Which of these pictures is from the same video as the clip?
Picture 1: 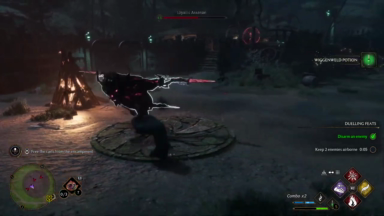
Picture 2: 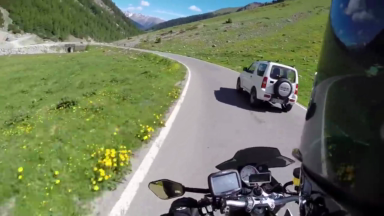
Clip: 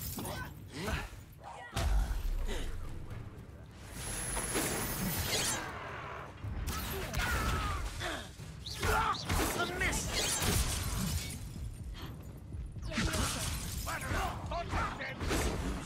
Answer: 1